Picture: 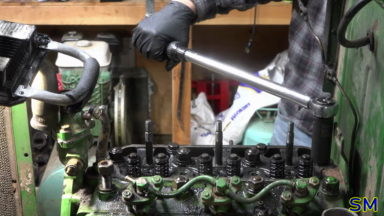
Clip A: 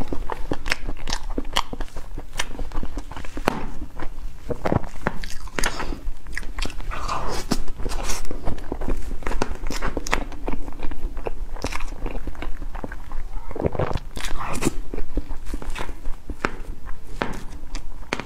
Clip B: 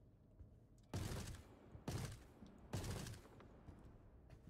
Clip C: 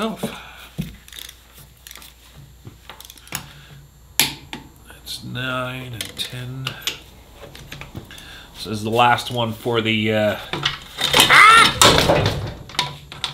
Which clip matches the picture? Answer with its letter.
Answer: C